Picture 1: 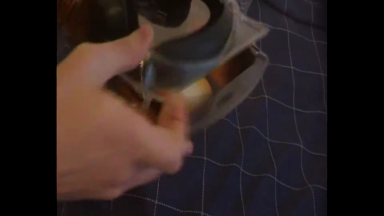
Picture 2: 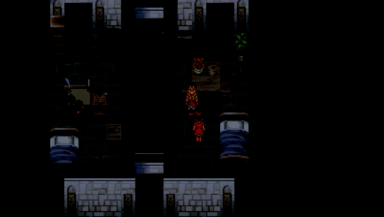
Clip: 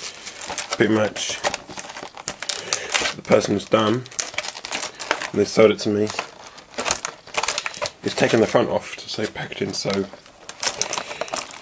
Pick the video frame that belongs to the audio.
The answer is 1